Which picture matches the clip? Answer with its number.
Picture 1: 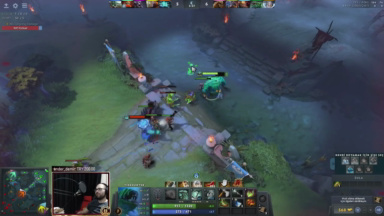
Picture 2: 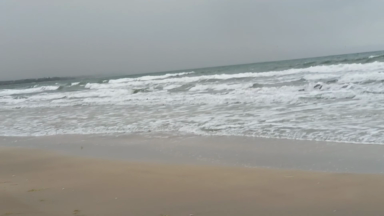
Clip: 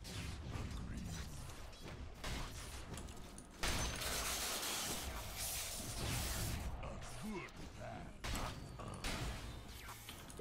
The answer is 1